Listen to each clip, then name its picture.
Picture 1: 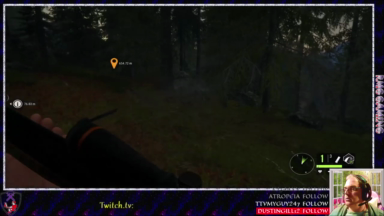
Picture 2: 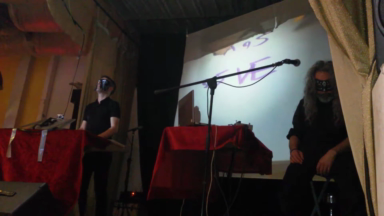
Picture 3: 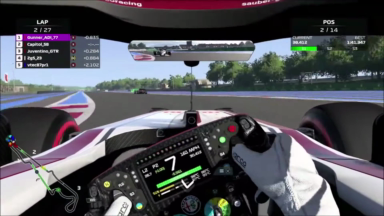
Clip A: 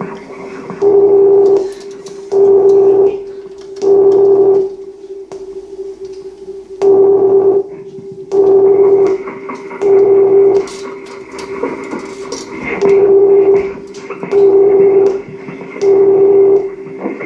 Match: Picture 2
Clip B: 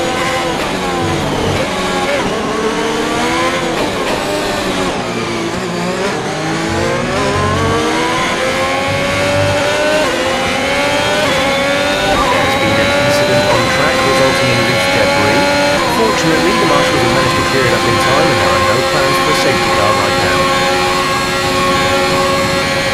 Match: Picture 3